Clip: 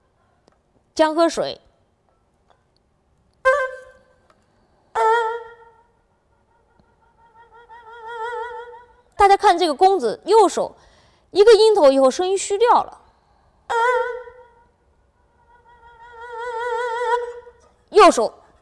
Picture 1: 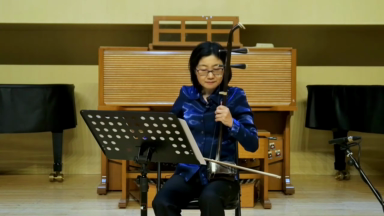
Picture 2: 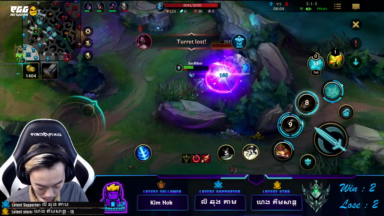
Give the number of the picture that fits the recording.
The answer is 1